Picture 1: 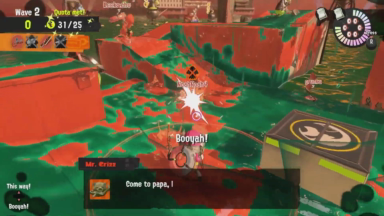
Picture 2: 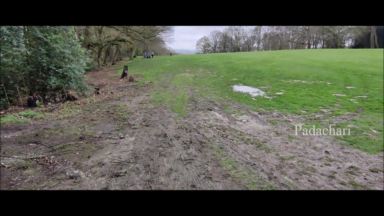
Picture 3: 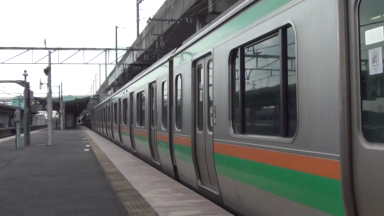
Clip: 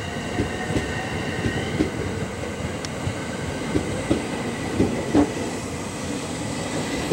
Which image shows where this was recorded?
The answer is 3